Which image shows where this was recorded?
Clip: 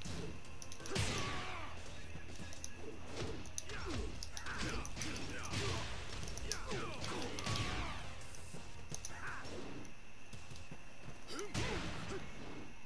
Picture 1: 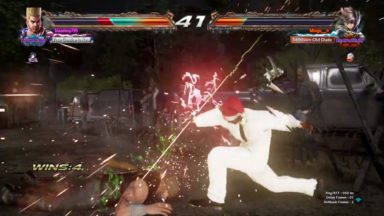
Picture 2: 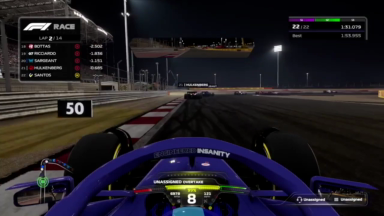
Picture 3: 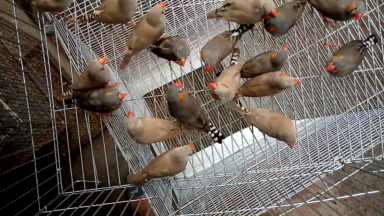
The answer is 1